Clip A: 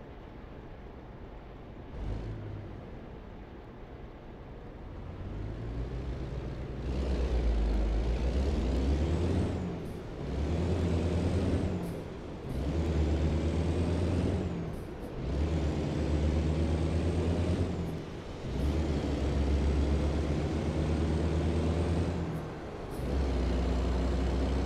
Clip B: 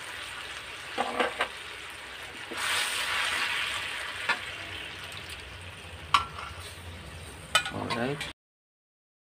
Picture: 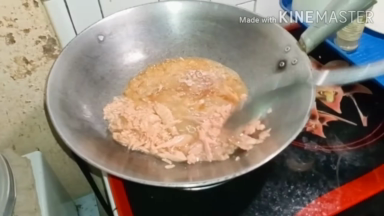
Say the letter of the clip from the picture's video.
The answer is B